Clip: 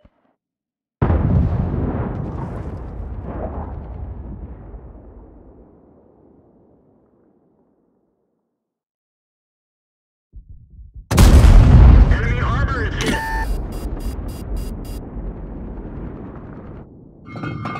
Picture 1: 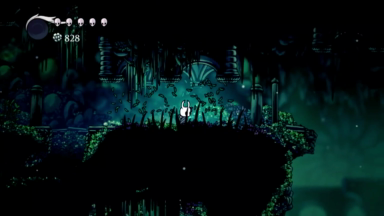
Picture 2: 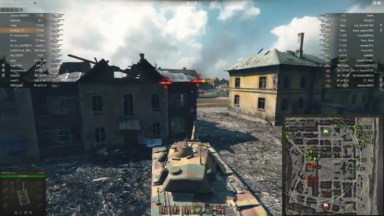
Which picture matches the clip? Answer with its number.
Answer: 2